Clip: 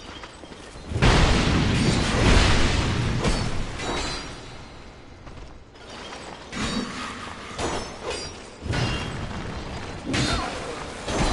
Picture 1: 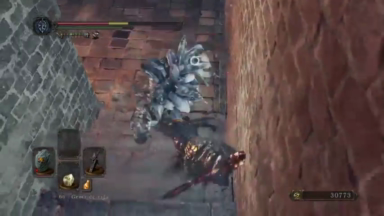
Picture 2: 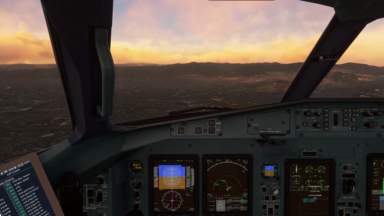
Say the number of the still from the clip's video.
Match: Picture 1